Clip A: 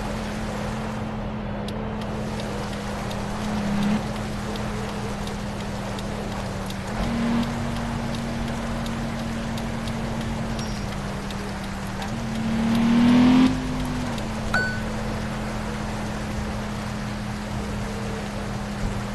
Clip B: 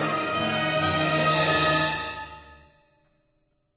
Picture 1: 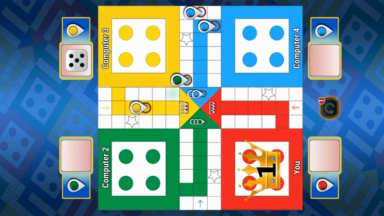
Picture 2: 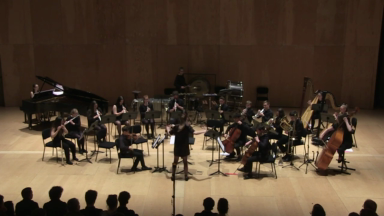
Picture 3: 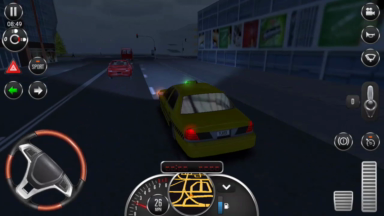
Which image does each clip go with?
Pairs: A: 3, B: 2